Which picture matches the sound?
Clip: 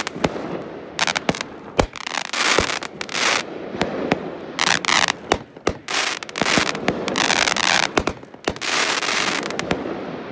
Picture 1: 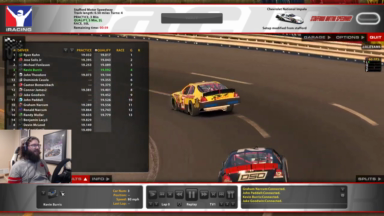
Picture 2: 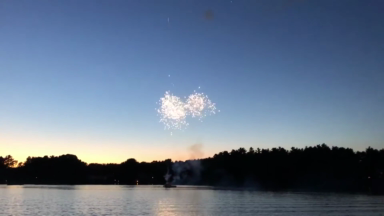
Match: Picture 2